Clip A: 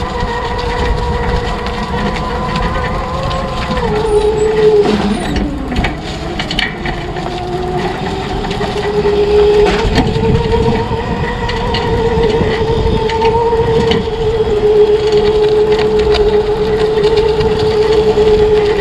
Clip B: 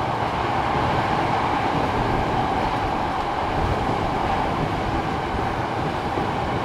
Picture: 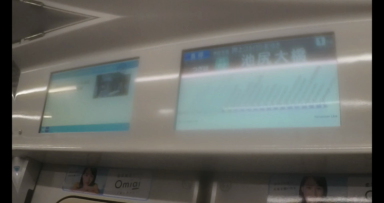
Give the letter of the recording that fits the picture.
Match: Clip B